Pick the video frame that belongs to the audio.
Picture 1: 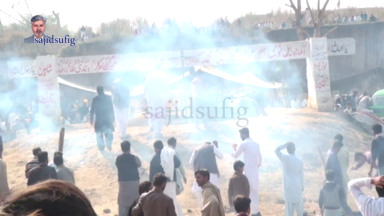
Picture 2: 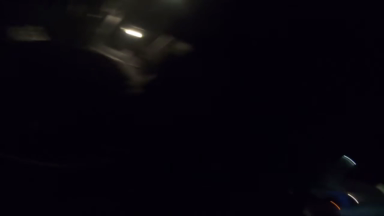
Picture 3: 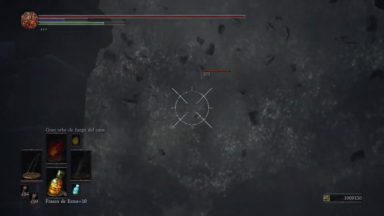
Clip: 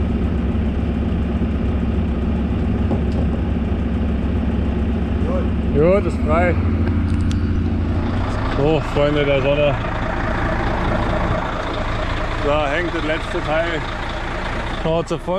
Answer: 2